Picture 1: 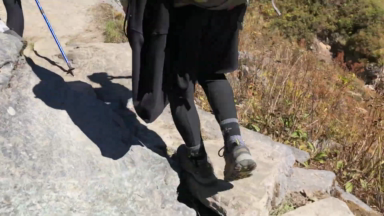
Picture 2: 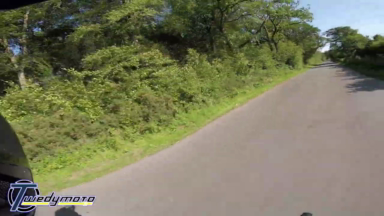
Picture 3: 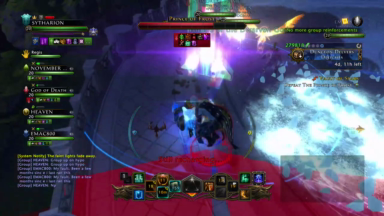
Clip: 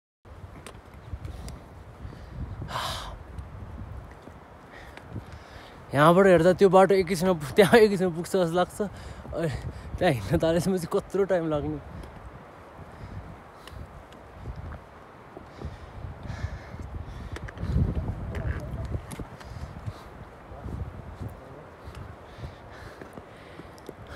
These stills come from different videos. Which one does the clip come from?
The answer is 1